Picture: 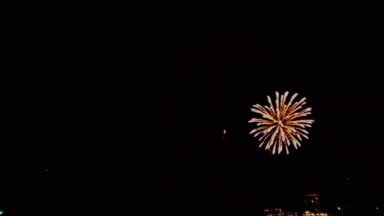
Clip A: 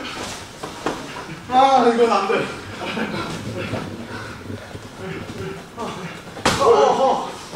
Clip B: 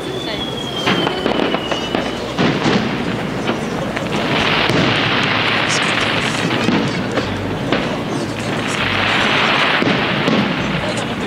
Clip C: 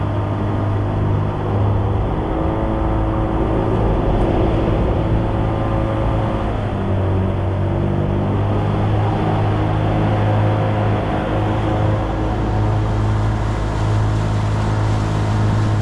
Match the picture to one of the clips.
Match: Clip B